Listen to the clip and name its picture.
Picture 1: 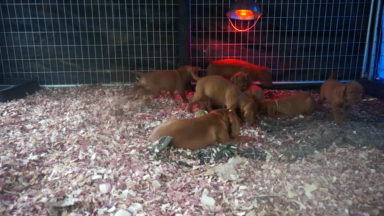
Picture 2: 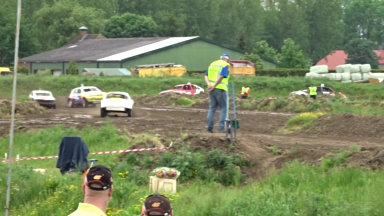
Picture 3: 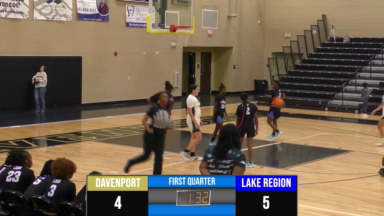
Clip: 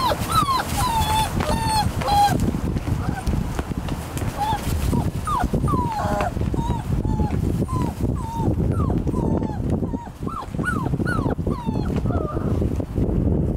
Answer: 1